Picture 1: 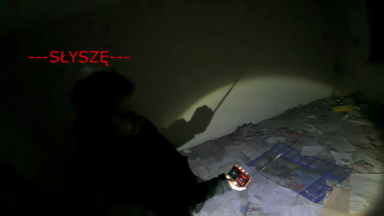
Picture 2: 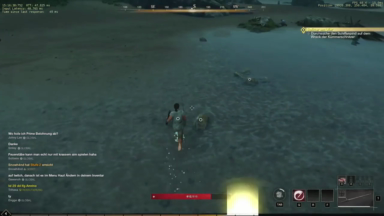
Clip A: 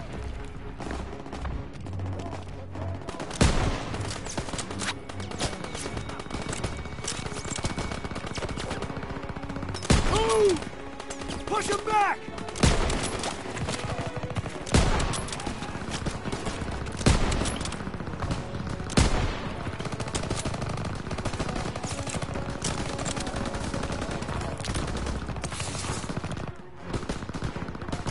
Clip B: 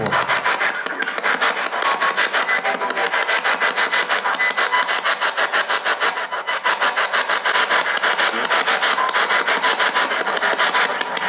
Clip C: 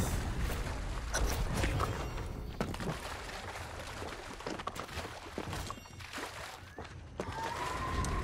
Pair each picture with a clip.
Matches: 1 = B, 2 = C